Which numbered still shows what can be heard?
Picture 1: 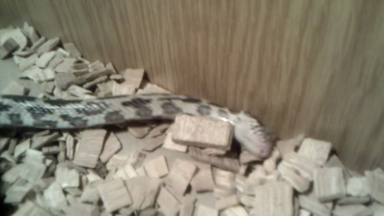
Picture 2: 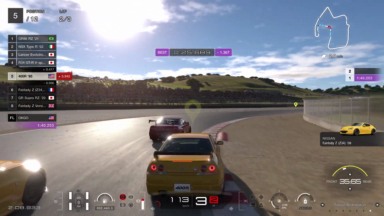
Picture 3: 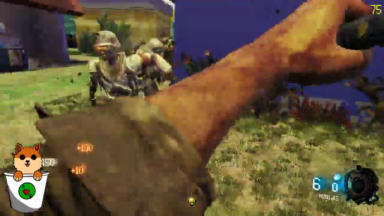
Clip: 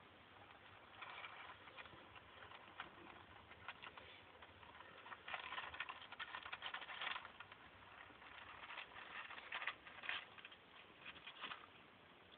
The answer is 1